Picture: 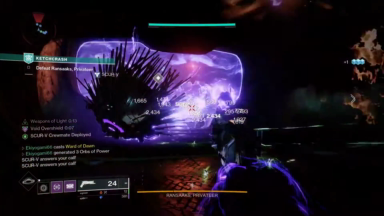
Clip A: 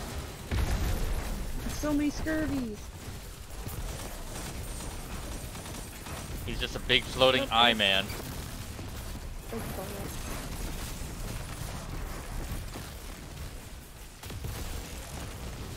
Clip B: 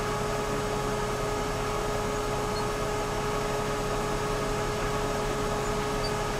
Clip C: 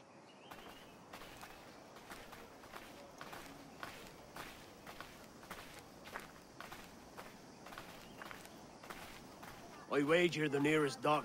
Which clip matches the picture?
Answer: A